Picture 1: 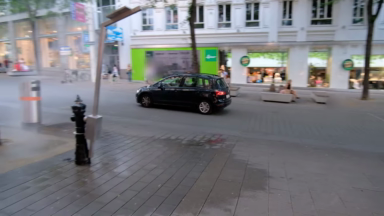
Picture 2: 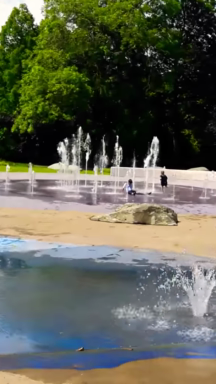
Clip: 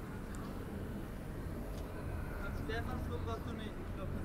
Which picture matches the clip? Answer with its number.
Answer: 1